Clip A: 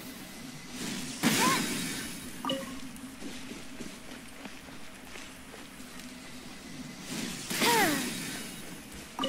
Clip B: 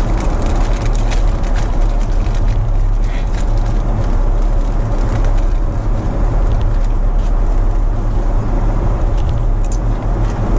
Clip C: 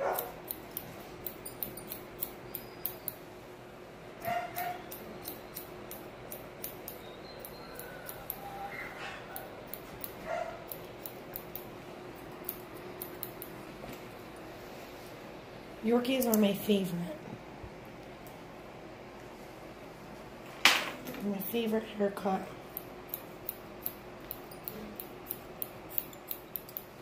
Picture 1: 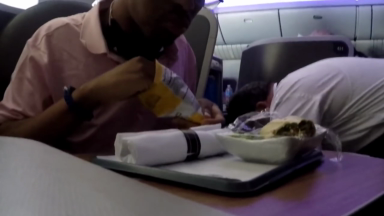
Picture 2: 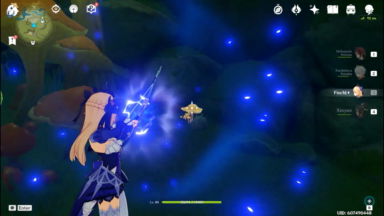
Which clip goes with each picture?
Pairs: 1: B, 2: A